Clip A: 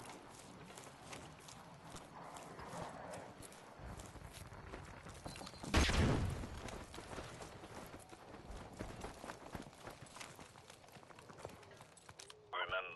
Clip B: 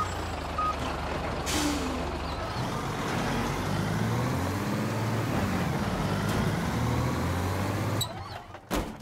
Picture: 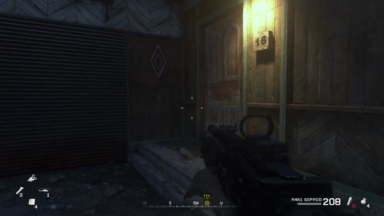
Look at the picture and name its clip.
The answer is A